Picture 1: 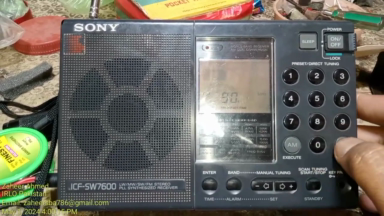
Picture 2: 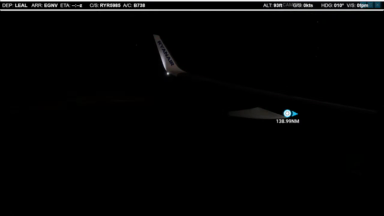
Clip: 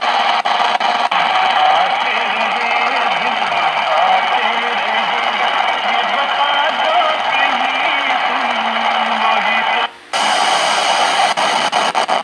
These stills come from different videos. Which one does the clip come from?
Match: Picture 1